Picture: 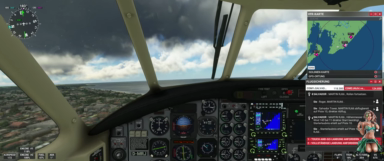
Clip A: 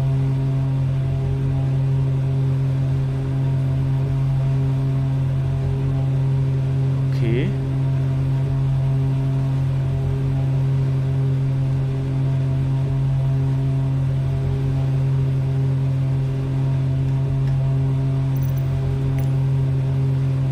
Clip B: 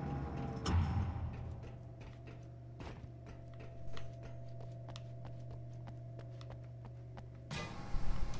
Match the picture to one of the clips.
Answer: A